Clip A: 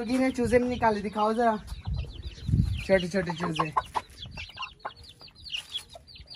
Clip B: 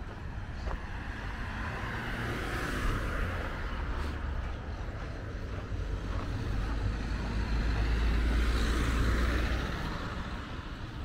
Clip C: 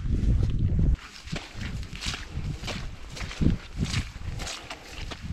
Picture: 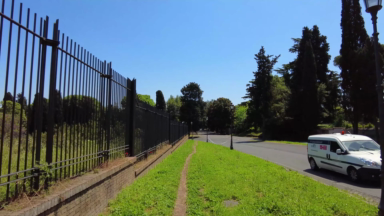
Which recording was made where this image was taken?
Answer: B